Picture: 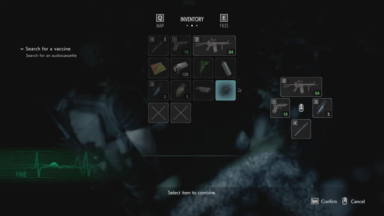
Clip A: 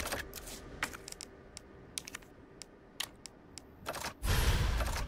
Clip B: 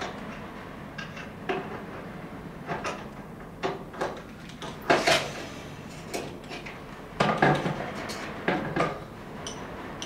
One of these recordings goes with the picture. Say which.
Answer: A